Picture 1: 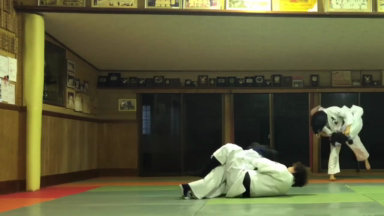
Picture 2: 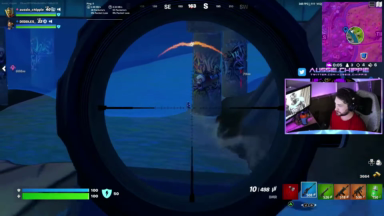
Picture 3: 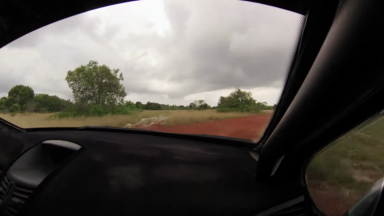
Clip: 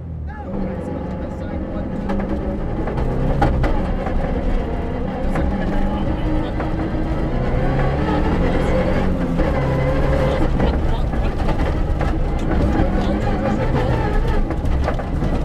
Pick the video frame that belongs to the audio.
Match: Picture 3